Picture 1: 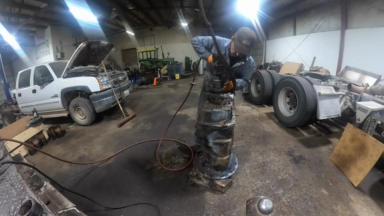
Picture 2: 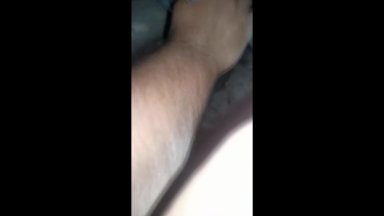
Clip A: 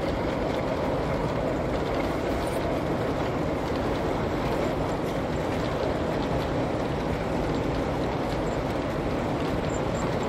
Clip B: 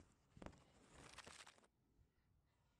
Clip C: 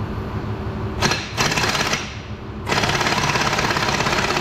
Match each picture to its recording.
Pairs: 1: C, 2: B